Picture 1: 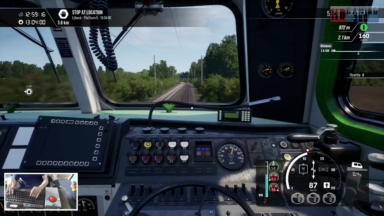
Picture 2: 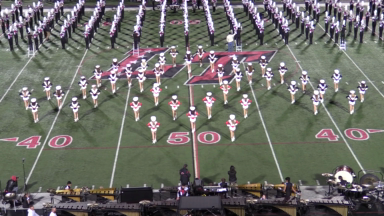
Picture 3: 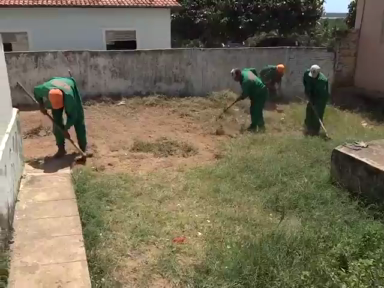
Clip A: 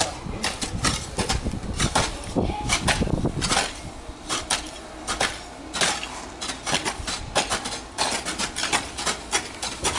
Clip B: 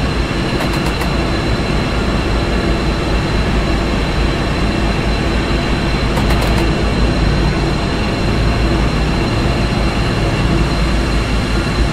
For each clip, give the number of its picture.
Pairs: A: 3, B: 1